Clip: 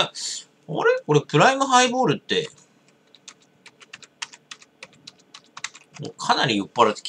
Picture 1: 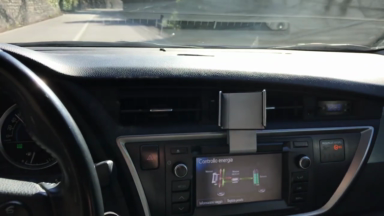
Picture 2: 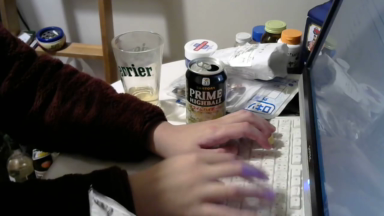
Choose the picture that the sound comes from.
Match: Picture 2